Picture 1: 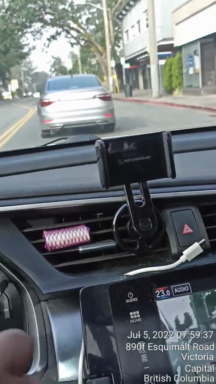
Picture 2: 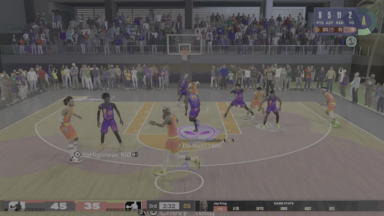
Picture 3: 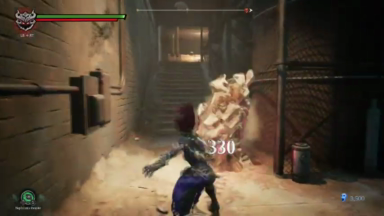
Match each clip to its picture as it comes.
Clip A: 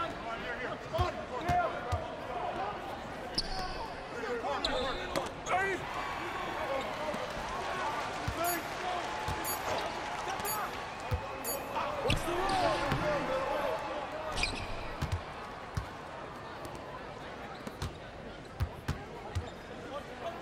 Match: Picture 2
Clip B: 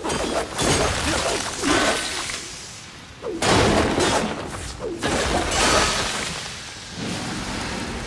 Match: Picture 3